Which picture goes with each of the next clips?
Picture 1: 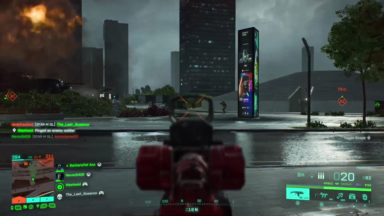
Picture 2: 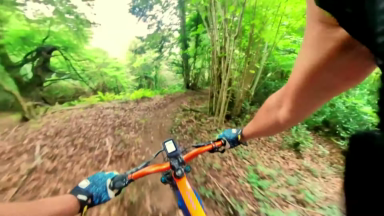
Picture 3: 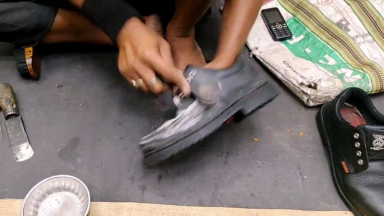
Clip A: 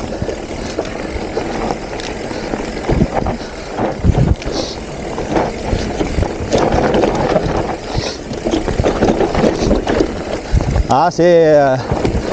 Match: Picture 2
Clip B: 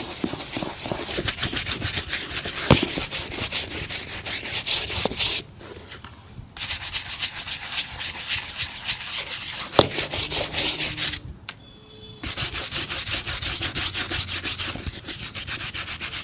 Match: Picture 3